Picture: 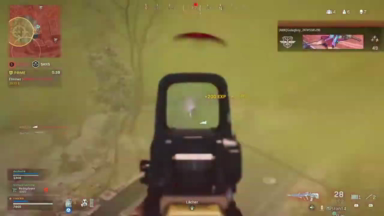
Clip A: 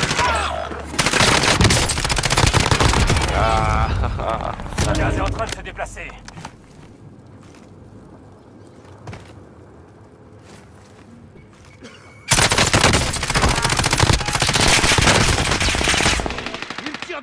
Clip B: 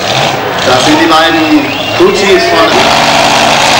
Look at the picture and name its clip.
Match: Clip A